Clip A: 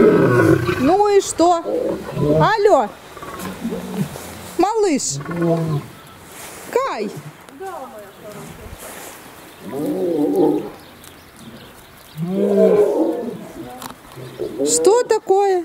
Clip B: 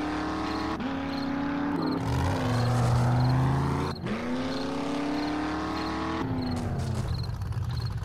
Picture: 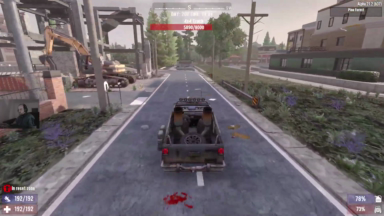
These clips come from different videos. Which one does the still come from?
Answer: B